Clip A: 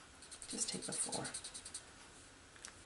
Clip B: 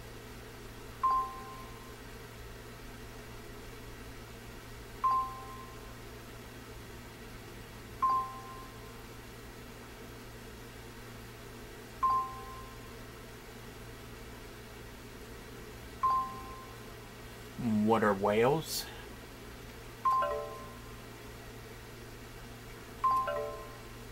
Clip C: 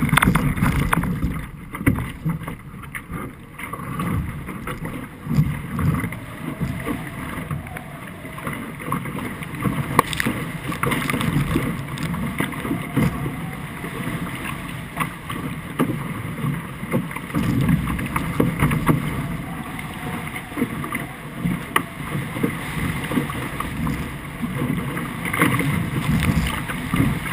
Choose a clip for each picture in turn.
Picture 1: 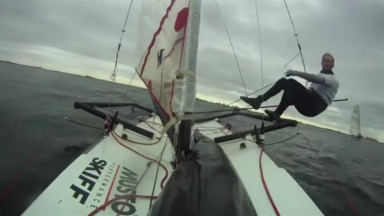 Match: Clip C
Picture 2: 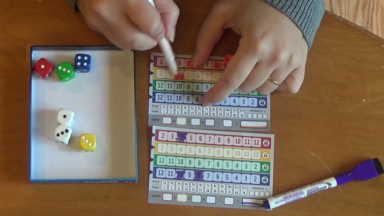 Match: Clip A